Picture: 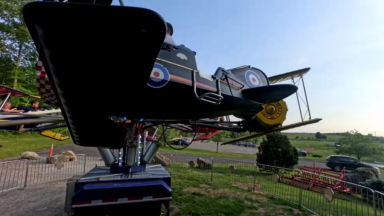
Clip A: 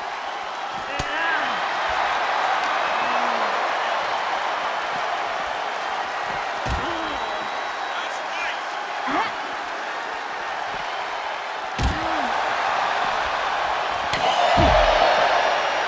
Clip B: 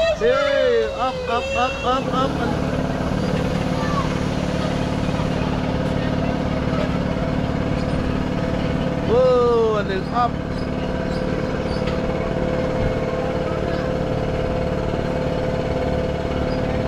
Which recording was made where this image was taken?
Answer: B